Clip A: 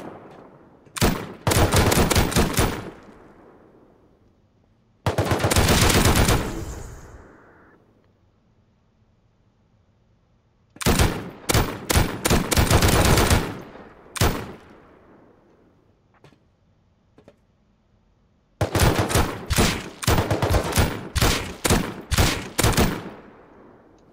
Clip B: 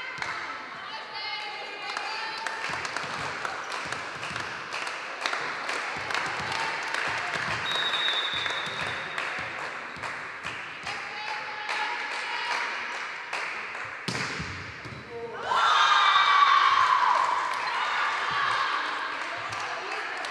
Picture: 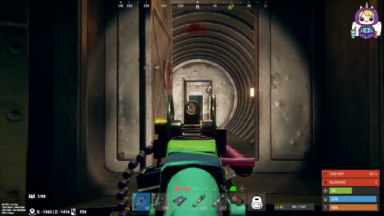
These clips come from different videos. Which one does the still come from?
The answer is A